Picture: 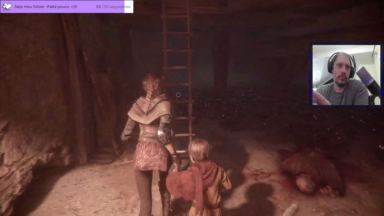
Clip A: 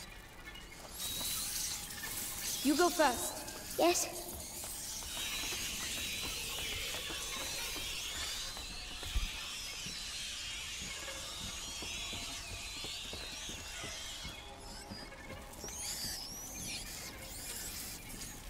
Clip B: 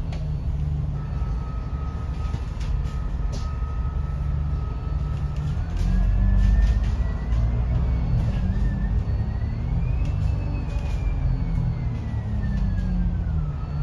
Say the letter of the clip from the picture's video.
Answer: A